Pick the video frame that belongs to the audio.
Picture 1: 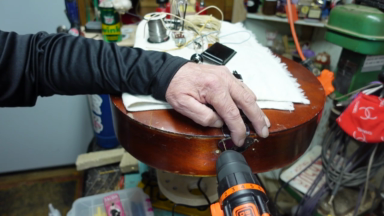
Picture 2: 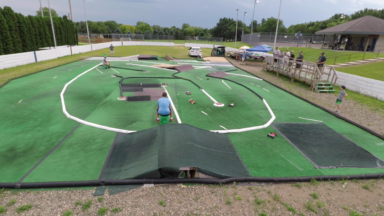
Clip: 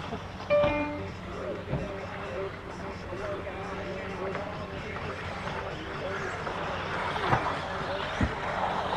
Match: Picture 2